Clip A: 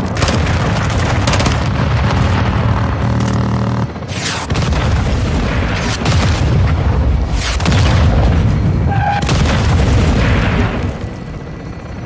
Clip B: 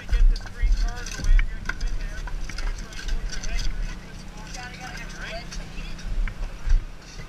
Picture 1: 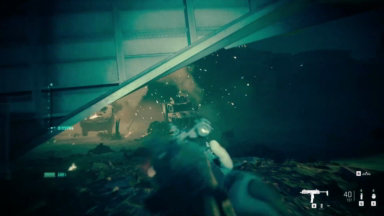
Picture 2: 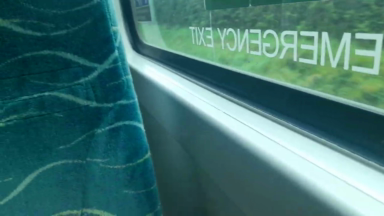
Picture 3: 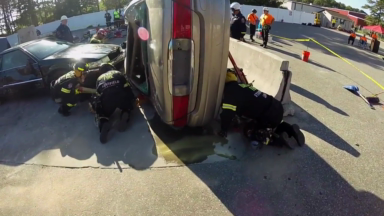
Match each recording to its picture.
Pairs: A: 1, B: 3